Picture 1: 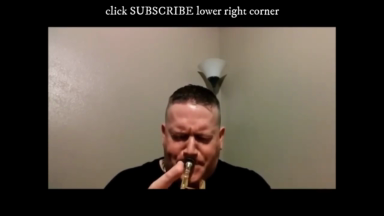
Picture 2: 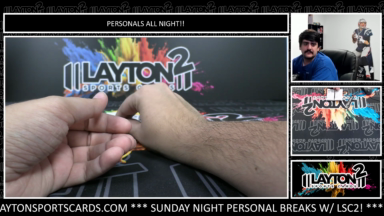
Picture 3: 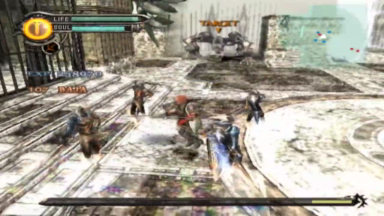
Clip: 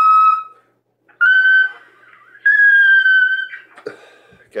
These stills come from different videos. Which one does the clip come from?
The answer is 1